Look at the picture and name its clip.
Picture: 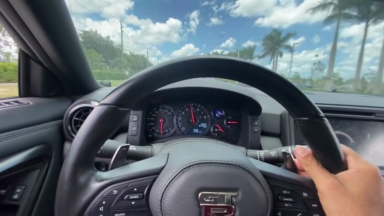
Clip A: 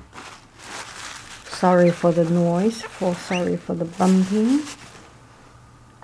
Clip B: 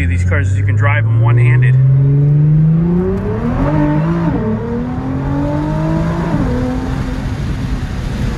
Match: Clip B